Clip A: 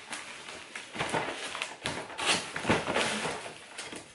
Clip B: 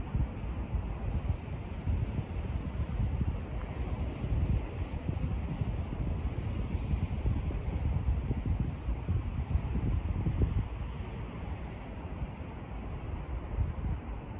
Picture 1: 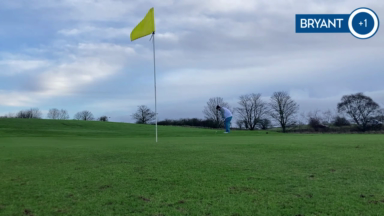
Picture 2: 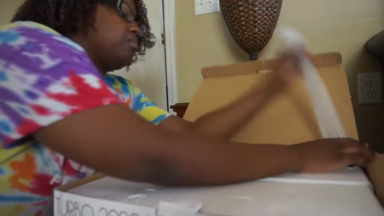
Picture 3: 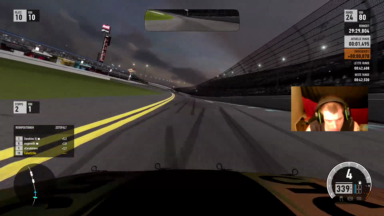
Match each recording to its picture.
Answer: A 2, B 1